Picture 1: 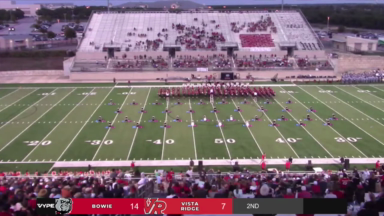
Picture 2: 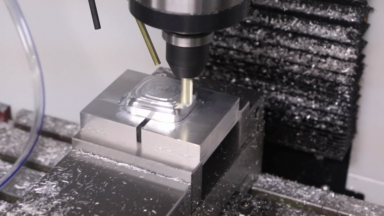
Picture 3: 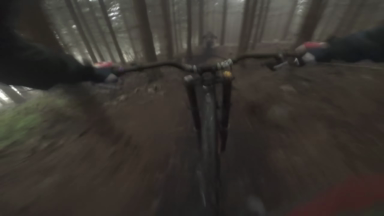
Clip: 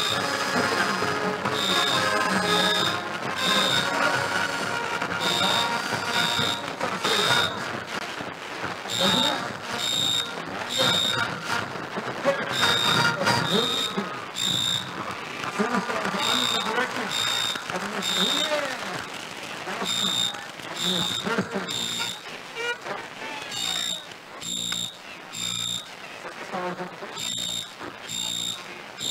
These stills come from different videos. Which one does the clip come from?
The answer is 1